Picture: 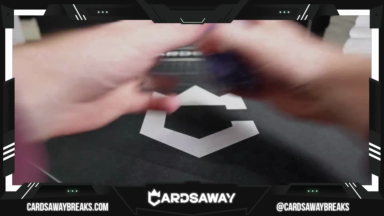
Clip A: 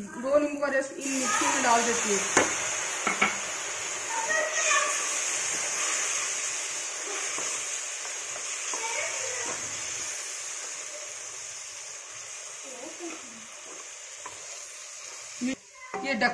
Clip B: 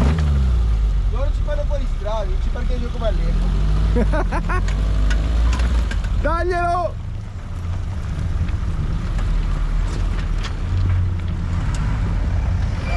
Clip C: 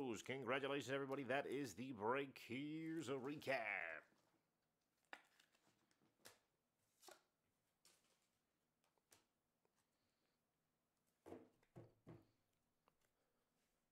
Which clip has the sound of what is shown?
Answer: C